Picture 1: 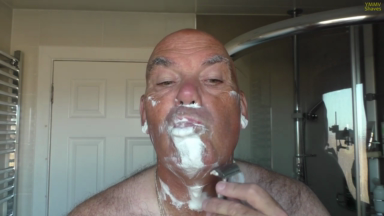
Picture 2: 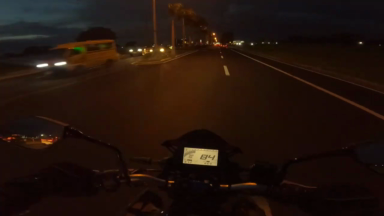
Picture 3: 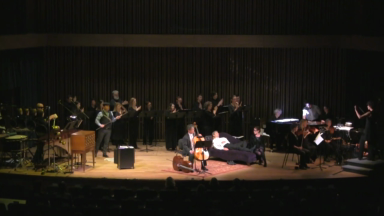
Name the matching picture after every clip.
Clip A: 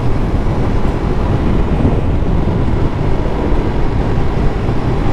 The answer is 2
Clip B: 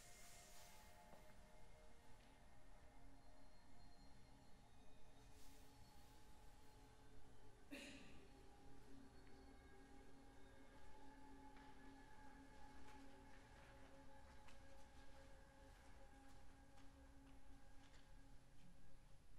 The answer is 3